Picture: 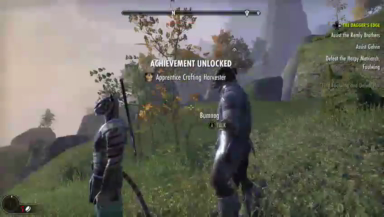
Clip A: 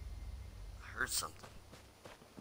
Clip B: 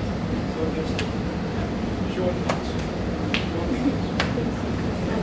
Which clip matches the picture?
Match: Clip A